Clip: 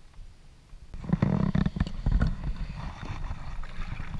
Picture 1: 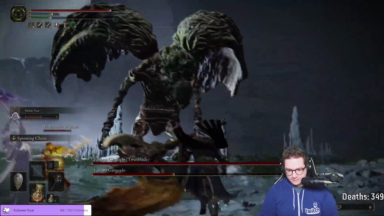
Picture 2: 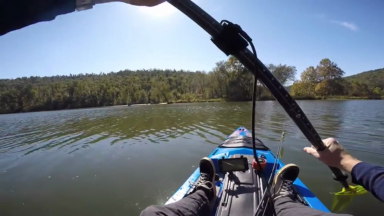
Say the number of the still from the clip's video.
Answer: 2